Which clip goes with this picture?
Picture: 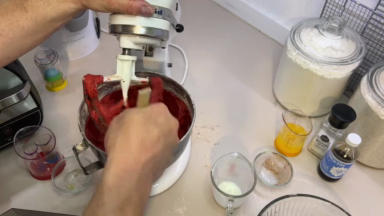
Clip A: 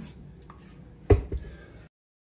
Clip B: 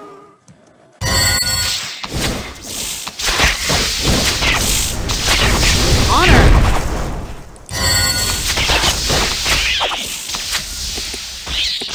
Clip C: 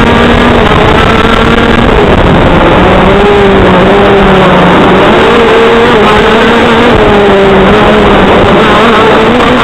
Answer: A